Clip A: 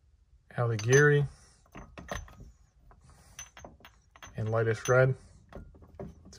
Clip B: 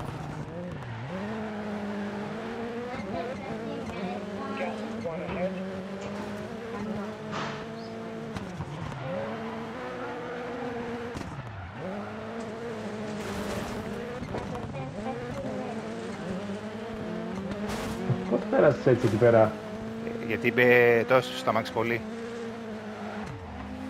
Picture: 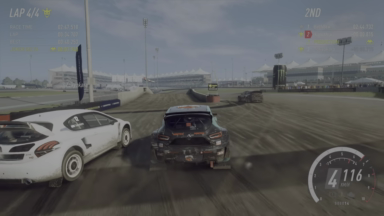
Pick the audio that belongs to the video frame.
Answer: B